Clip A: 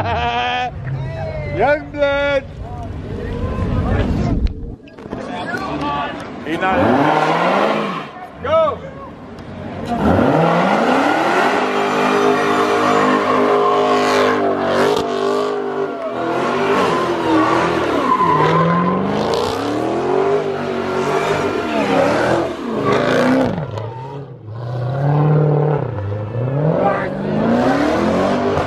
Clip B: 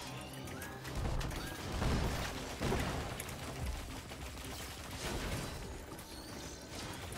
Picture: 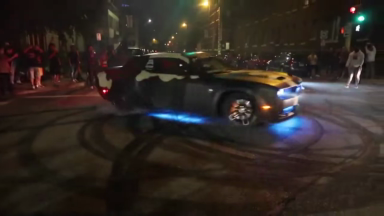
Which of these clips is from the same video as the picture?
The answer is A